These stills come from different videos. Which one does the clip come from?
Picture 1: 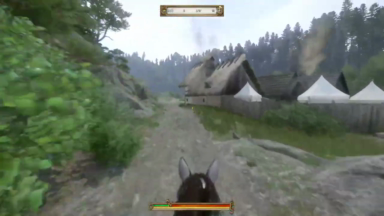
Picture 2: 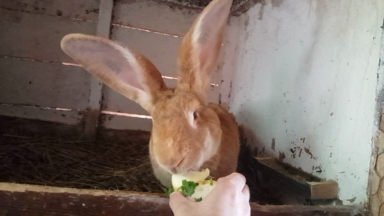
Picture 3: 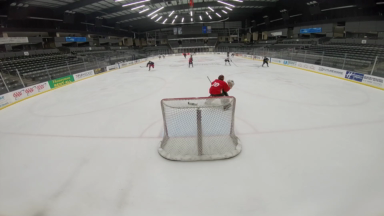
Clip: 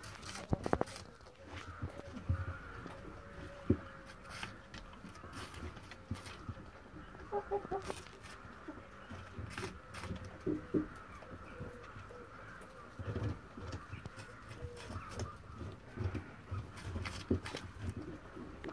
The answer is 2